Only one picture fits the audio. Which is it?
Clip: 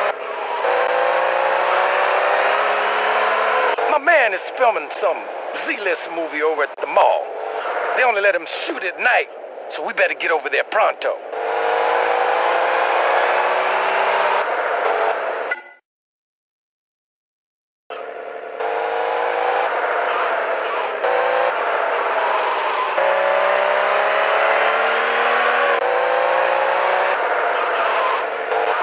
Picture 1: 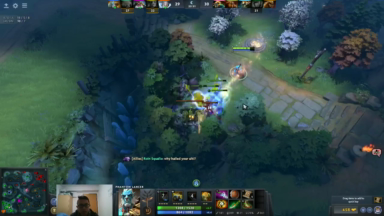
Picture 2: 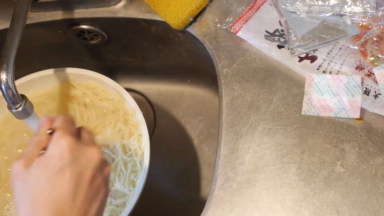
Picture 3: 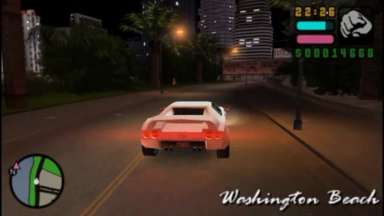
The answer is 3